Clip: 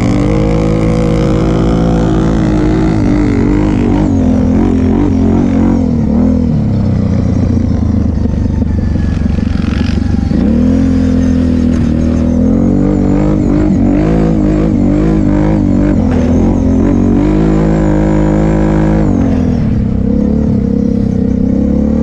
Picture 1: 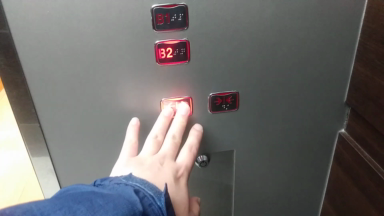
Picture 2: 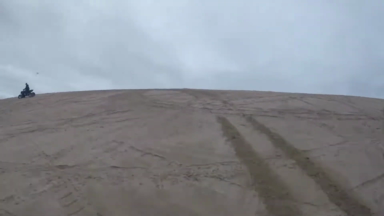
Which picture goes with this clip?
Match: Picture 2